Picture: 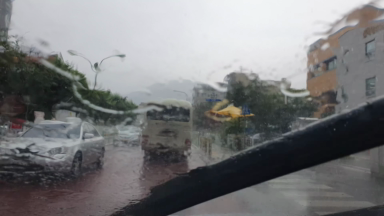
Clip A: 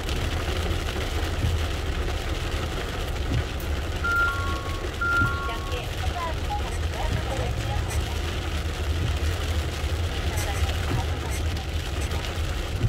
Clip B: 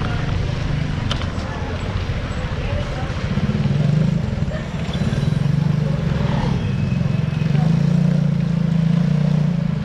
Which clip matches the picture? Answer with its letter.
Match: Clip A